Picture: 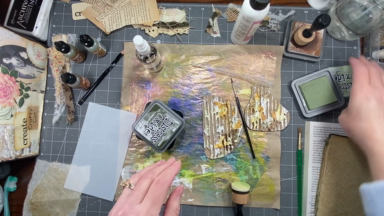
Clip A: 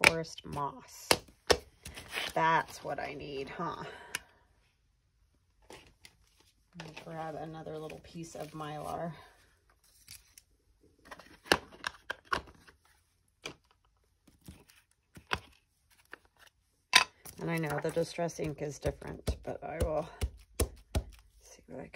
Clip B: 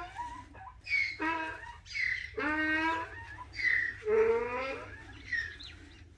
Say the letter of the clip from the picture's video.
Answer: A